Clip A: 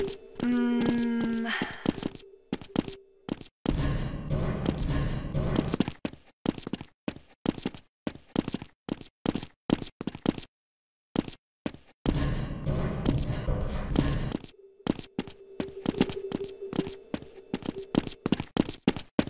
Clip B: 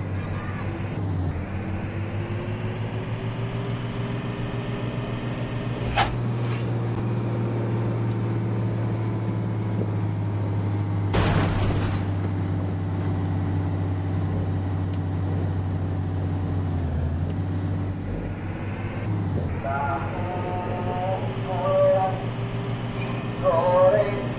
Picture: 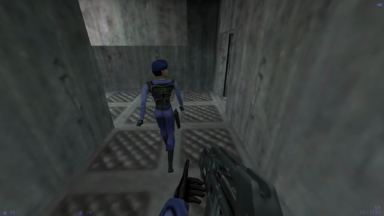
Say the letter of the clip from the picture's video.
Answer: A